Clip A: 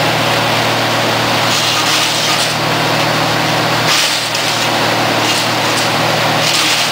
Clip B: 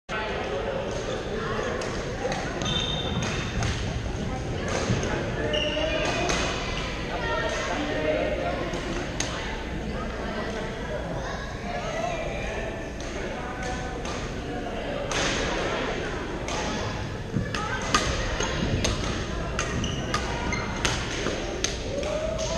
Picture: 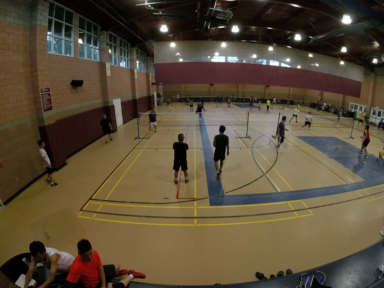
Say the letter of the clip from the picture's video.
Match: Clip B